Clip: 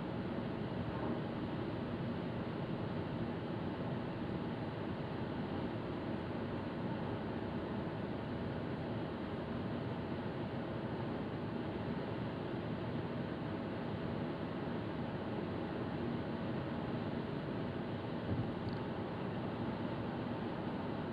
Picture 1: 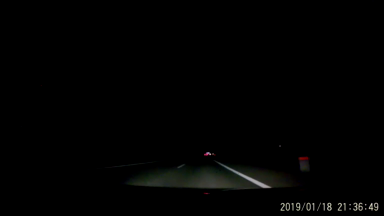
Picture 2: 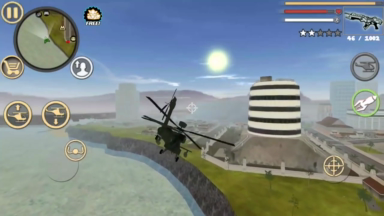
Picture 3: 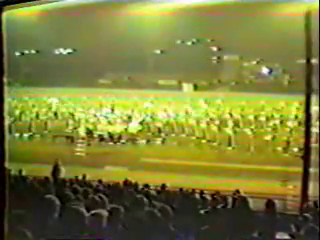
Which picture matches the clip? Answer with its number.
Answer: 1